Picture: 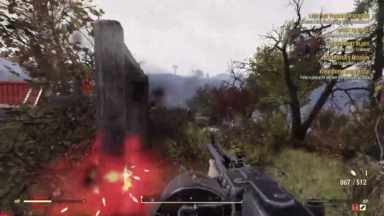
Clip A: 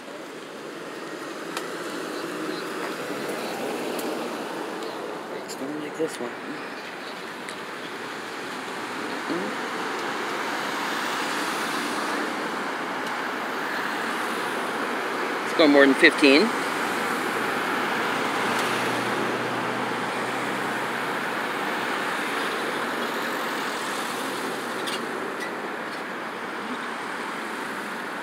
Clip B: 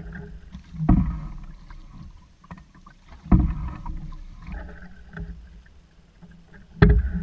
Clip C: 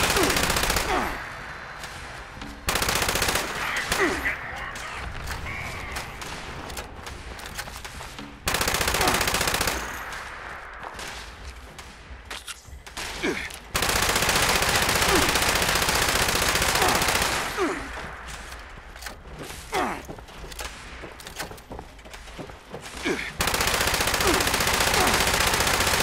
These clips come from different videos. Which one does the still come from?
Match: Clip C